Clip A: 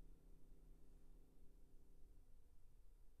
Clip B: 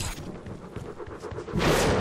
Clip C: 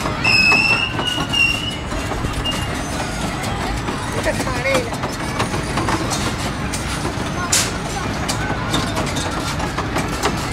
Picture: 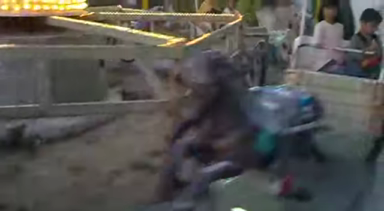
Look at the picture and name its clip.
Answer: C